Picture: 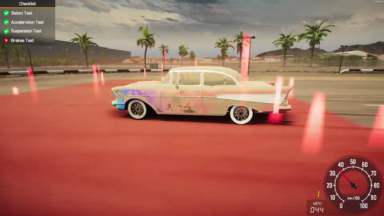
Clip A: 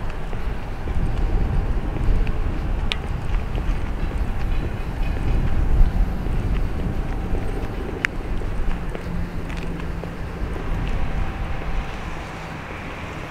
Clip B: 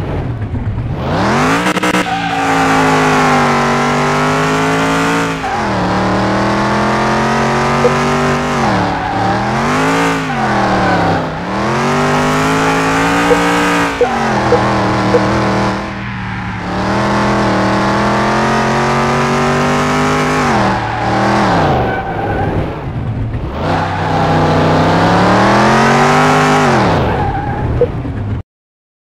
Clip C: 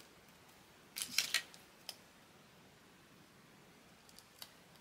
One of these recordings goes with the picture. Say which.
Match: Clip B